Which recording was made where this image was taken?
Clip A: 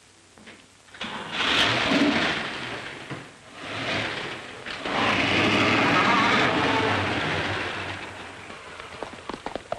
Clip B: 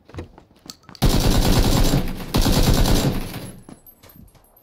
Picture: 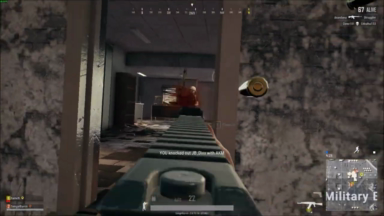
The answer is B